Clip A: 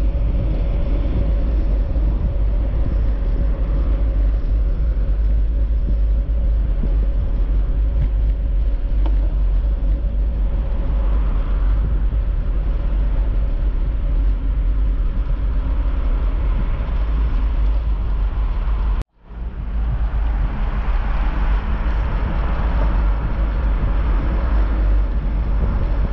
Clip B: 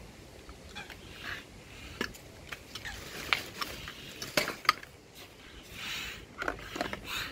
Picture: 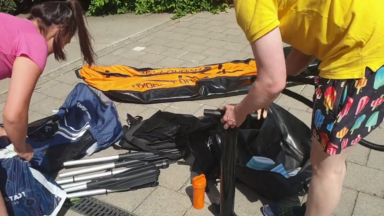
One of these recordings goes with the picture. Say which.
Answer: B